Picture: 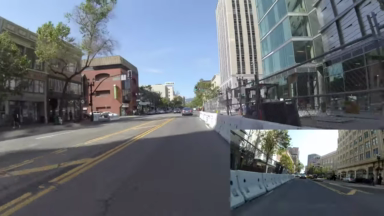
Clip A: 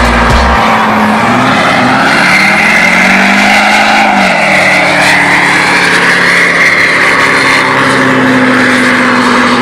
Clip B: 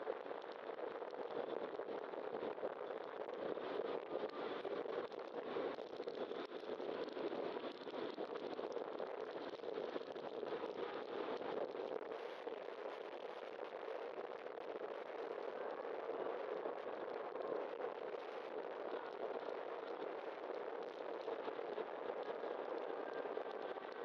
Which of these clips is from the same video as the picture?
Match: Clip B